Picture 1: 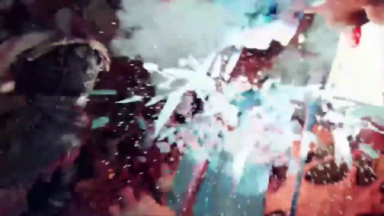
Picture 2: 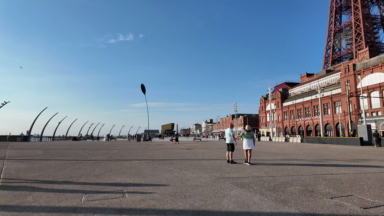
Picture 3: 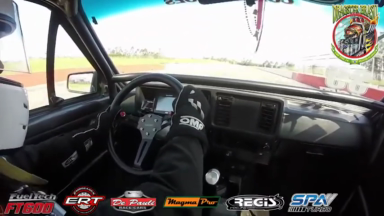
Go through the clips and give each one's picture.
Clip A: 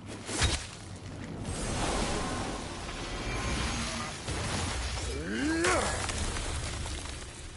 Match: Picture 1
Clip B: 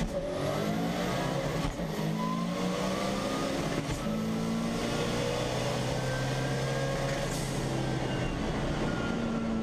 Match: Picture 3